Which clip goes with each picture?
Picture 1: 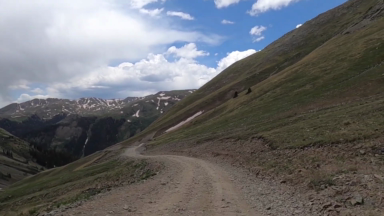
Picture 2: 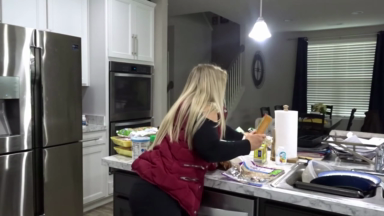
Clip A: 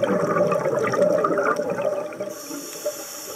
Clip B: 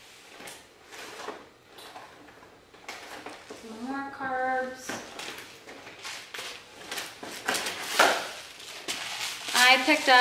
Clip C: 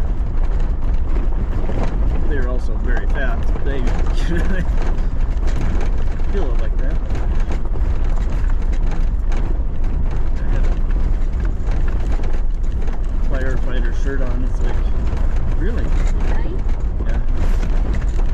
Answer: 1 C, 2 B